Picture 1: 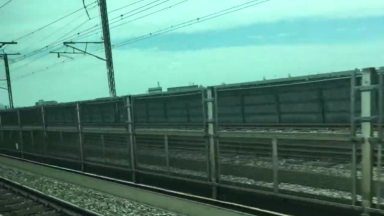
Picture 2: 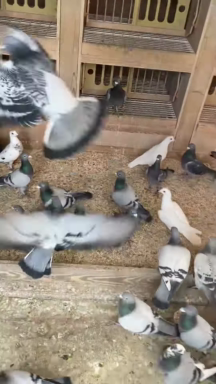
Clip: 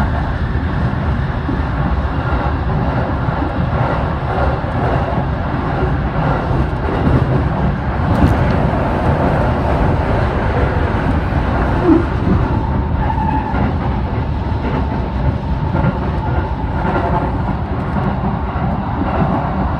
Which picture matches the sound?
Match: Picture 1